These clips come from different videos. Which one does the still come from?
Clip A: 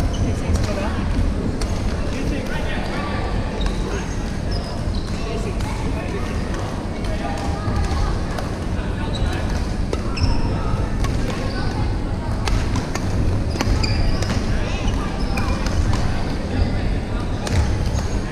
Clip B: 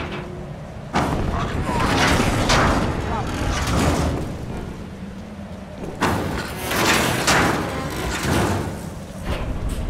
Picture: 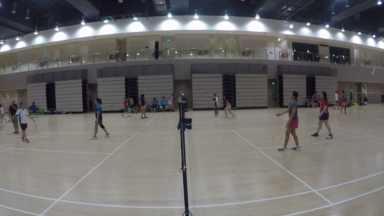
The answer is A